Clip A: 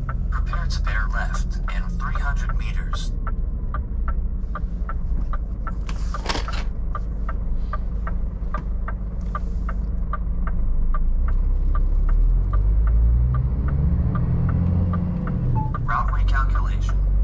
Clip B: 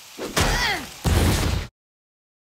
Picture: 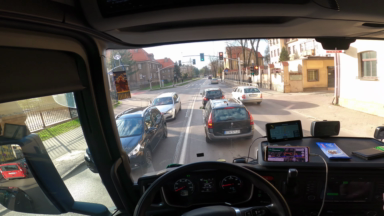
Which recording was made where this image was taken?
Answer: A